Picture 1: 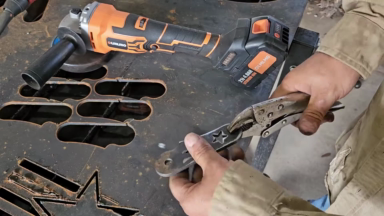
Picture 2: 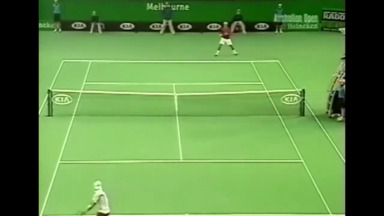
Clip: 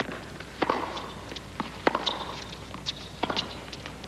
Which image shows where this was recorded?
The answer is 2